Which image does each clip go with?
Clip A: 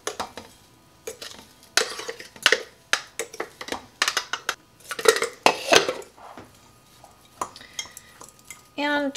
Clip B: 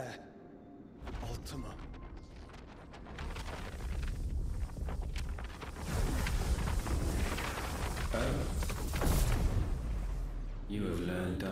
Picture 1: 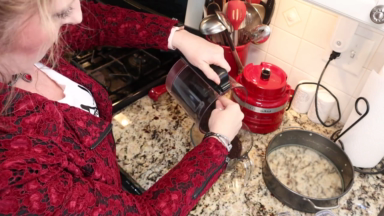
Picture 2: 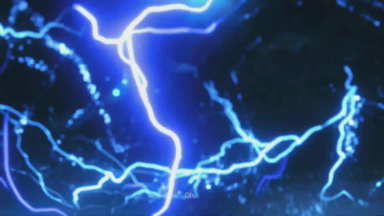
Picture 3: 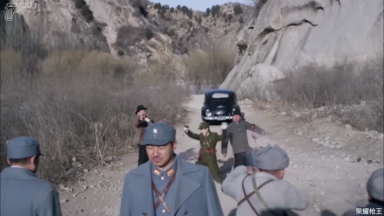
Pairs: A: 1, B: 2